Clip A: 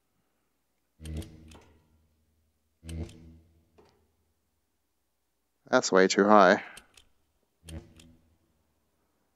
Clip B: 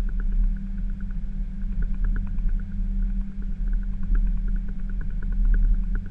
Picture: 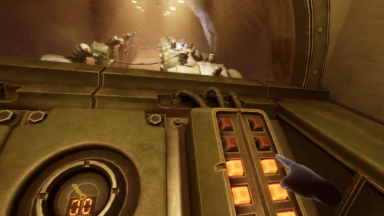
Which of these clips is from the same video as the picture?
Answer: A